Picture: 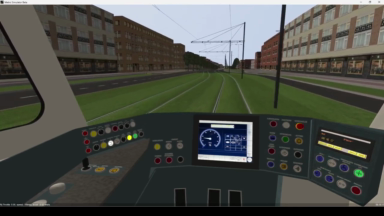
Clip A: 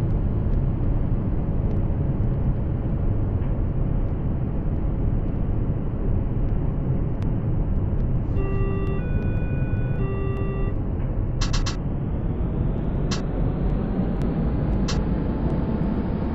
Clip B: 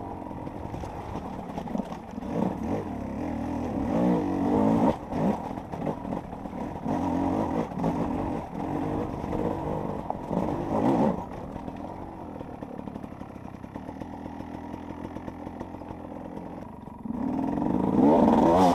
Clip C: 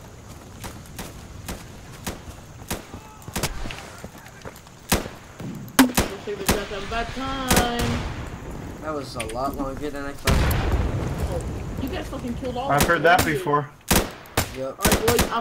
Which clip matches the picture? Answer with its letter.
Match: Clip A